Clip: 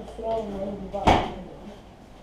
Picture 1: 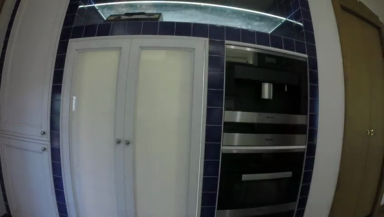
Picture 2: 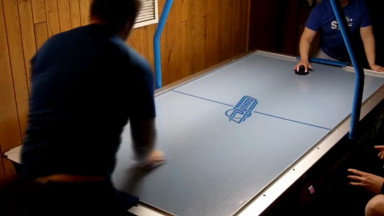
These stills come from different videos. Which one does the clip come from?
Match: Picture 1